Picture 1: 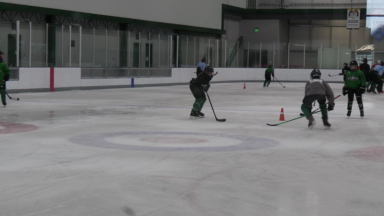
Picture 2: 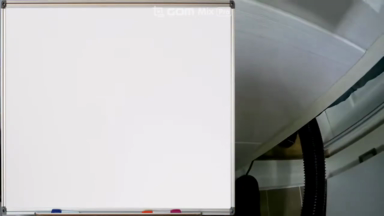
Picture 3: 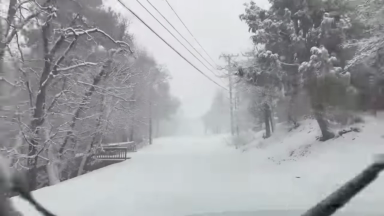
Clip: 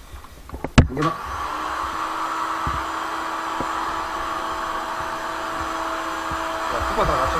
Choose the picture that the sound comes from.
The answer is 2